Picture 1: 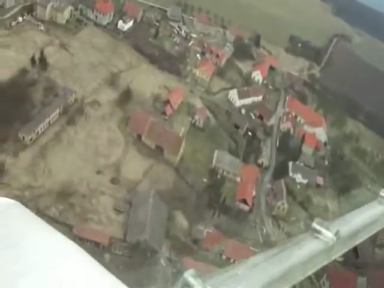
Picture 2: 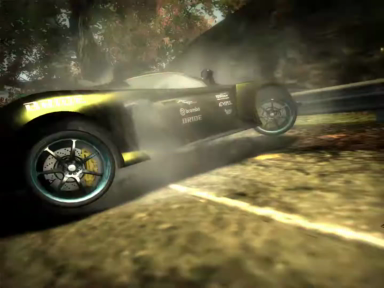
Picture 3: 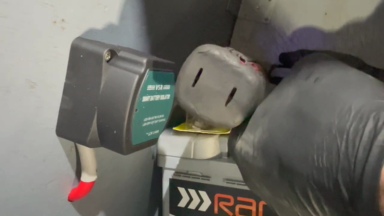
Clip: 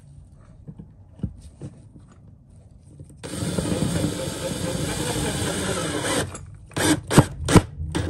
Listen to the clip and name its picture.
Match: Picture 3